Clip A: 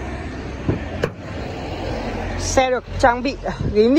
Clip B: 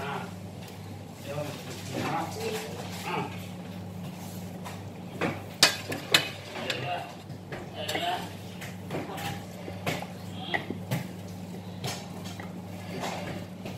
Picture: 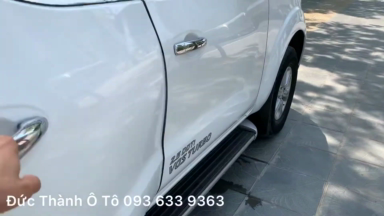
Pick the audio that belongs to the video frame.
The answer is A